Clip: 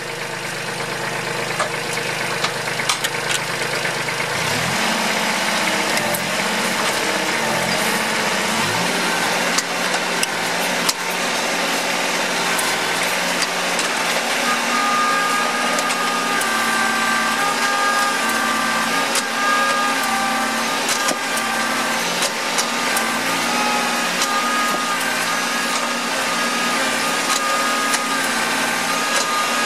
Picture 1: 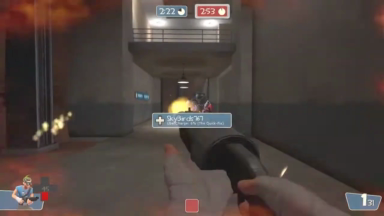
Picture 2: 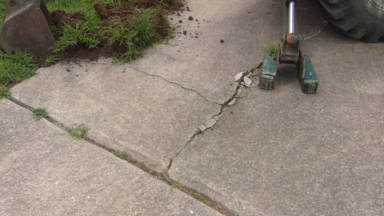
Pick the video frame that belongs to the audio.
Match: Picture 2